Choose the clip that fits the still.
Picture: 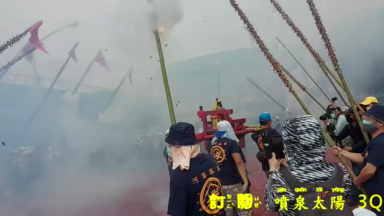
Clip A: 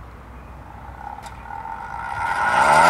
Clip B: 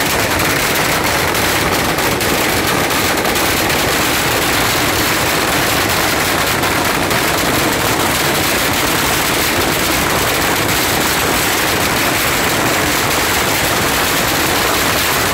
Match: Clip B